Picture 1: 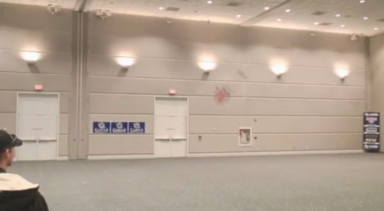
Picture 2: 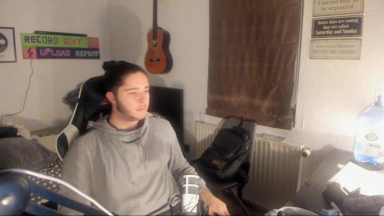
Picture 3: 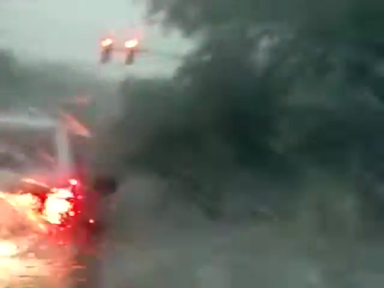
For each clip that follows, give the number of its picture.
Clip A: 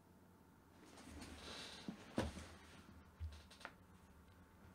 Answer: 2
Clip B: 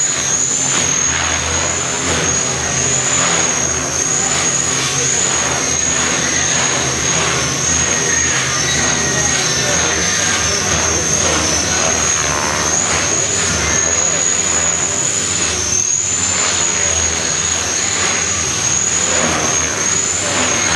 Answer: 1